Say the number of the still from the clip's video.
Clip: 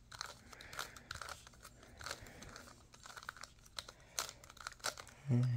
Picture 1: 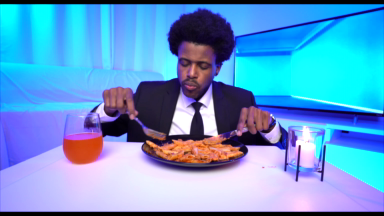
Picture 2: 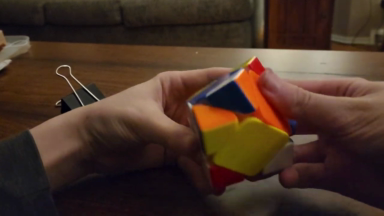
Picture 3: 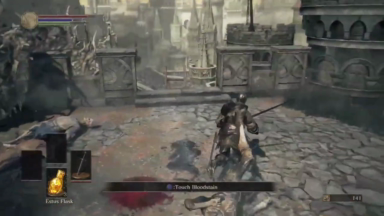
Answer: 2